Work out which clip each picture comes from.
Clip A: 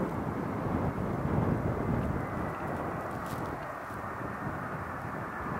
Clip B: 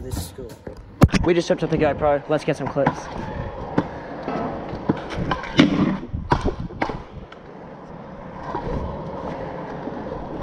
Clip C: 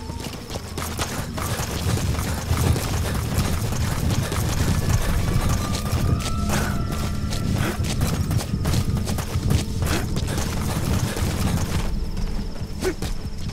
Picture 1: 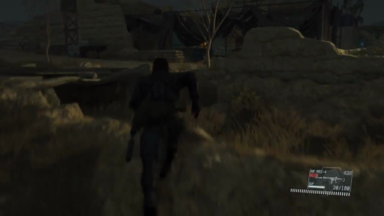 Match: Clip C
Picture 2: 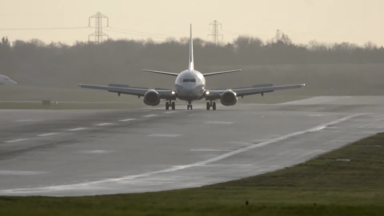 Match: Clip A